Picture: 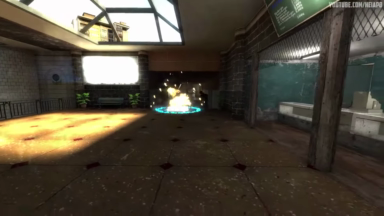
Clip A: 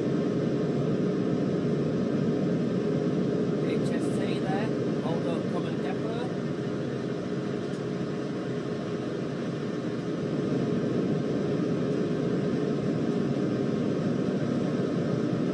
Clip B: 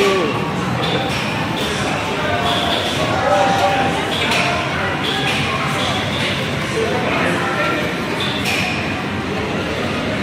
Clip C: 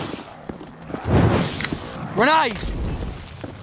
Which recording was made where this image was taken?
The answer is C